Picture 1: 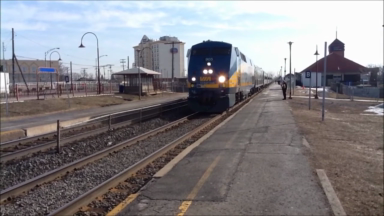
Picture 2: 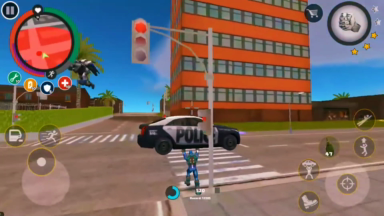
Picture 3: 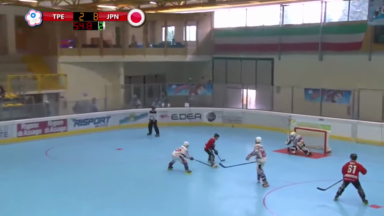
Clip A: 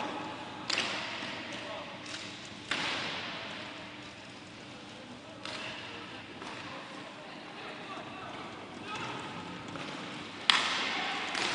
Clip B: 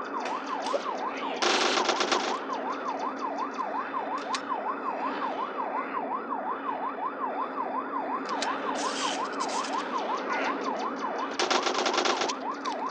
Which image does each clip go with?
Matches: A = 3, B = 2